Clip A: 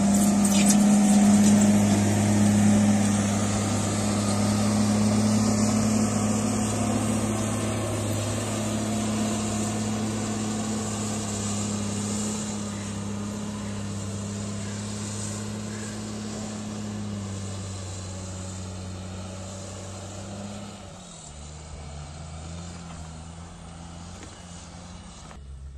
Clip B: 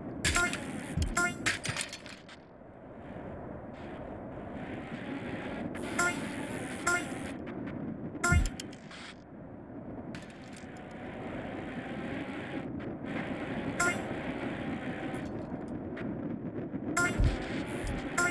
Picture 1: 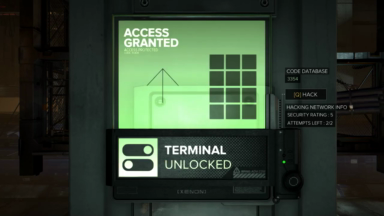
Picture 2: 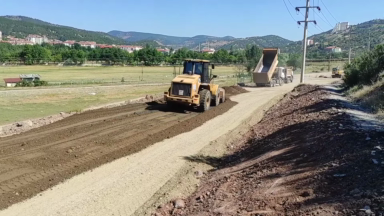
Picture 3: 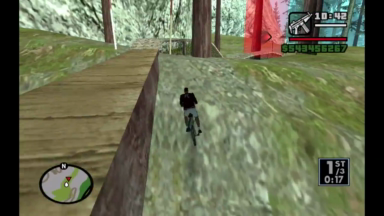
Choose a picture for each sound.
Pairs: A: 2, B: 3